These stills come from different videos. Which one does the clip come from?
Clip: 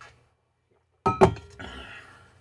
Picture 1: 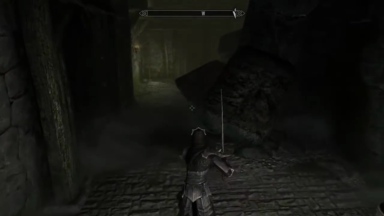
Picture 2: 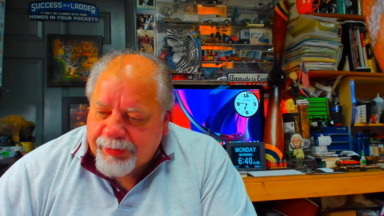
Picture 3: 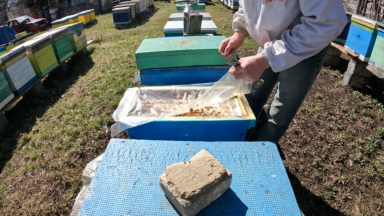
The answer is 2